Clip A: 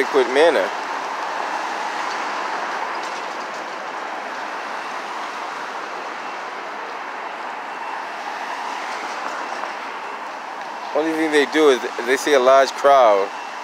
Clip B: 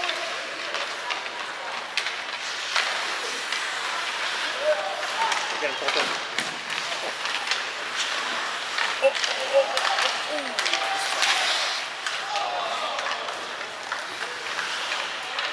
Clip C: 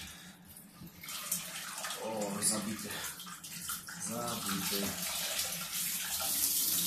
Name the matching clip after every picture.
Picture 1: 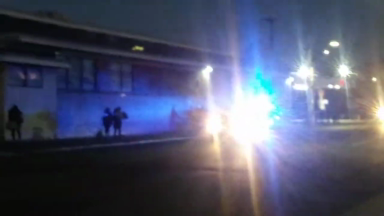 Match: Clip A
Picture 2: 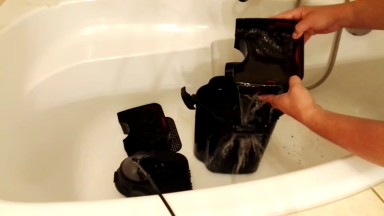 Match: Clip C